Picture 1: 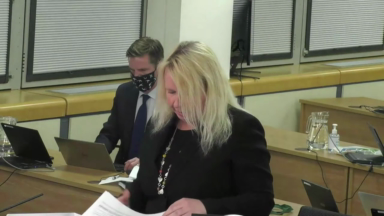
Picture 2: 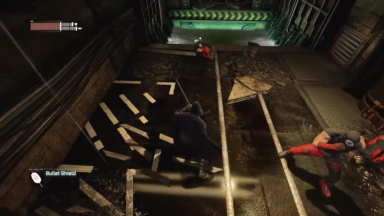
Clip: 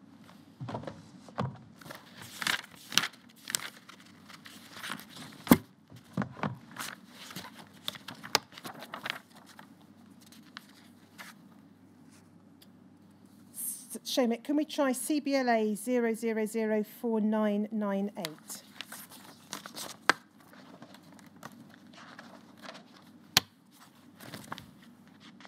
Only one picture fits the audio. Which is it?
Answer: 1